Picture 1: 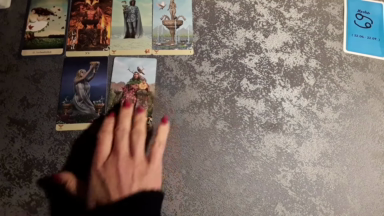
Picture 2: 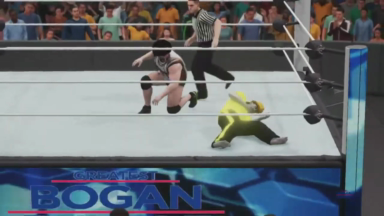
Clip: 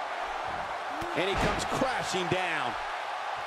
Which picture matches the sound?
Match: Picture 2